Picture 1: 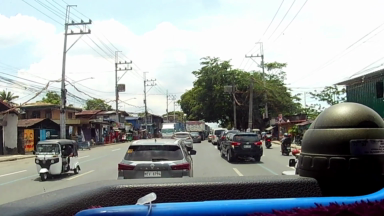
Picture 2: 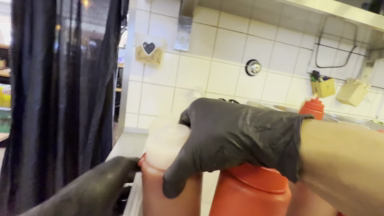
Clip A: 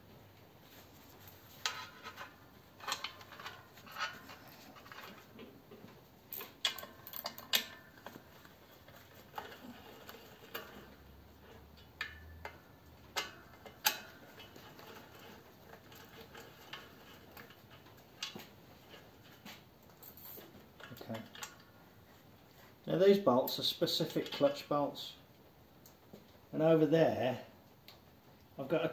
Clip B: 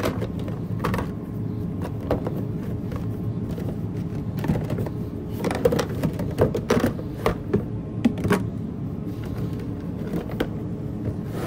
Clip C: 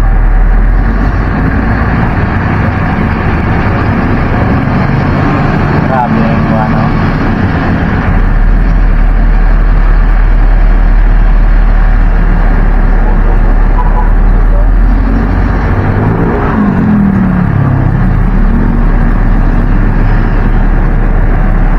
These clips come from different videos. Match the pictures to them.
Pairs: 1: C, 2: B